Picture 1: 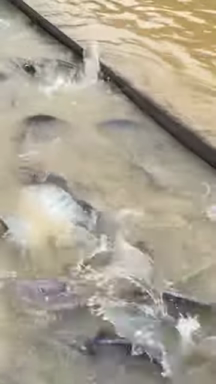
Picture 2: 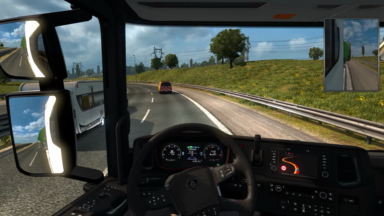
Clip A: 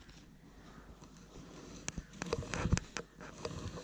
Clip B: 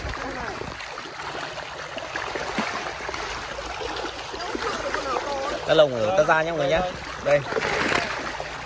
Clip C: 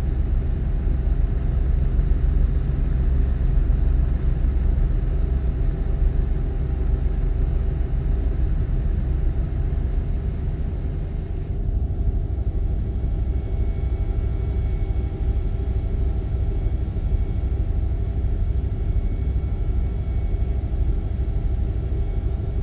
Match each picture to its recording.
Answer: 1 B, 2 C